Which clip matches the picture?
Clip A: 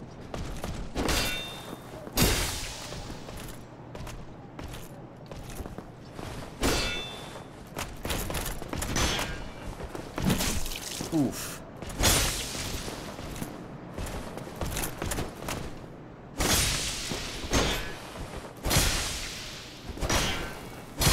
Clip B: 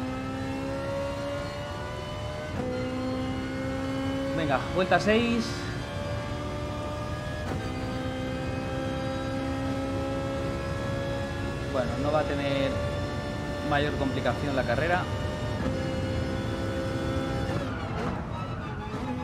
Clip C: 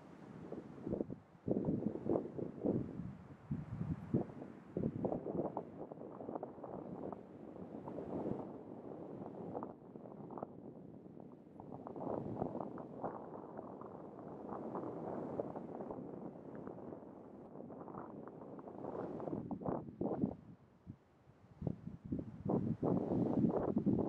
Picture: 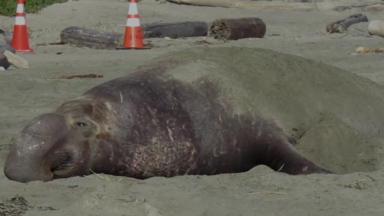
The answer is C